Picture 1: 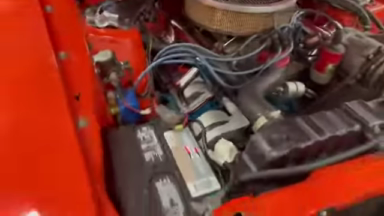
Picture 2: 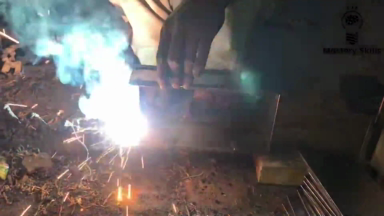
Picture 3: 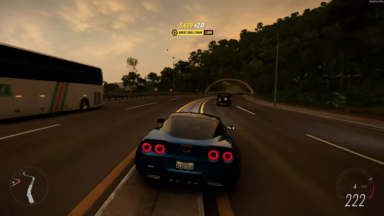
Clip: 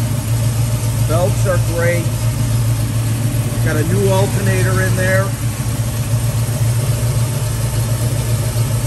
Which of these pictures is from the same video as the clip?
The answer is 1